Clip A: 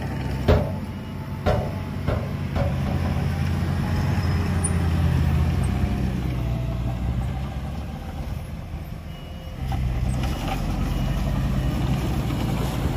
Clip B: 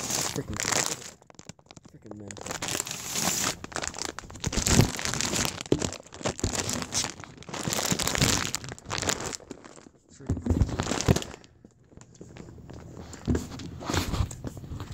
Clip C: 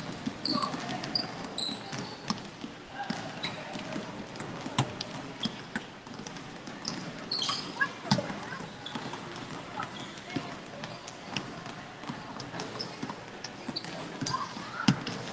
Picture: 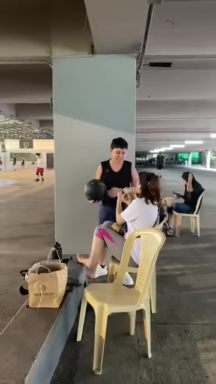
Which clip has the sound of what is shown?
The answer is C